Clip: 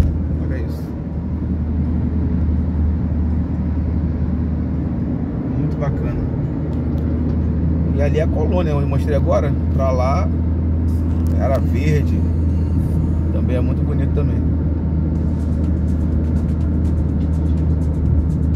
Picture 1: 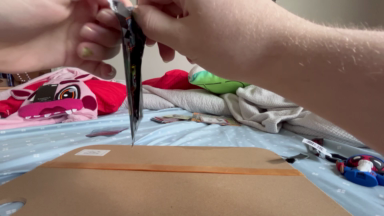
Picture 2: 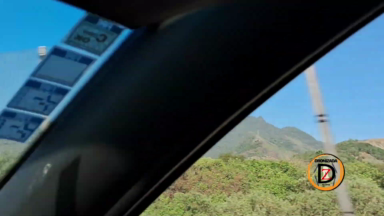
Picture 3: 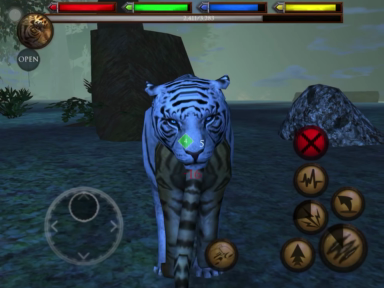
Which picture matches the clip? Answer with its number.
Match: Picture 2